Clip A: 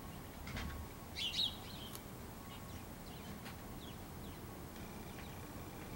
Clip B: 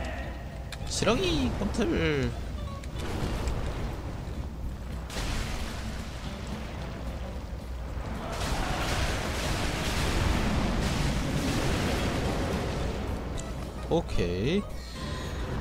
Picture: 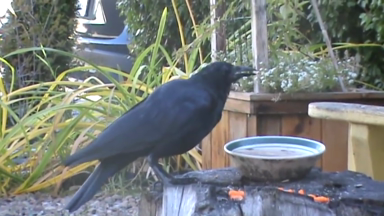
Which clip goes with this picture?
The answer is A